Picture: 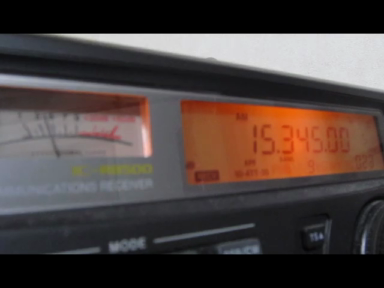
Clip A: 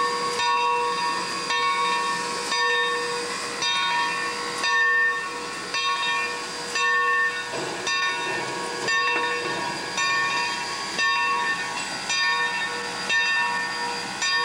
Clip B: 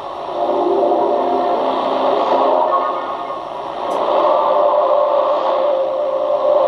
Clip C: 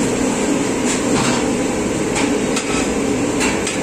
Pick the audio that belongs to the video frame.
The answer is B